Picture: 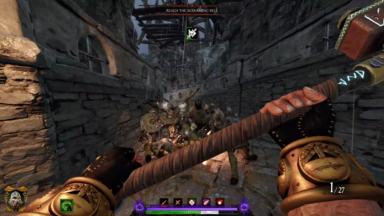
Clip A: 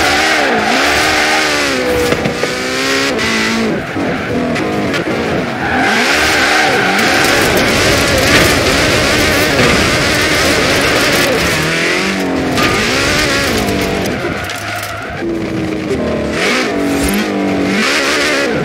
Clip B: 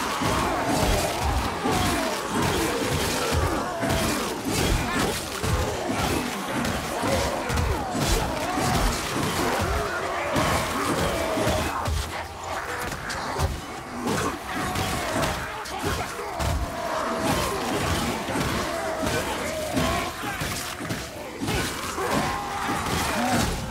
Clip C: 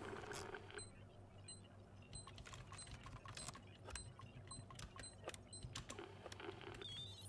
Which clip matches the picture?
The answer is B